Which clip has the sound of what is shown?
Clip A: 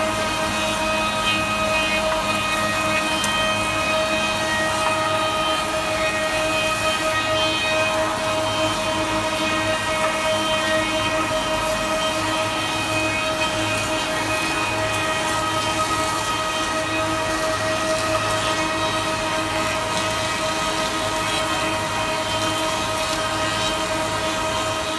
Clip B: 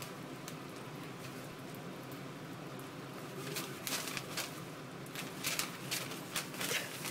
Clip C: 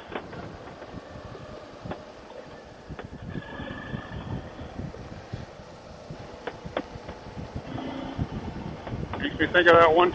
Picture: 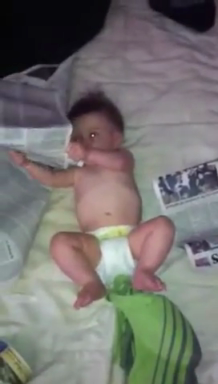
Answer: B